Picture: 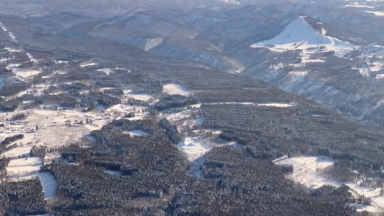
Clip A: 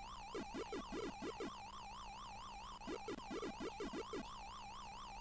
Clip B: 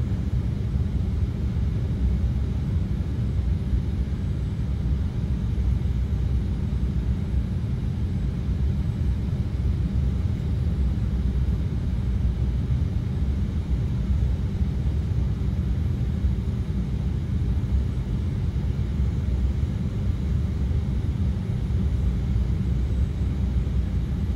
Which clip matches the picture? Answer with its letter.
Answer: B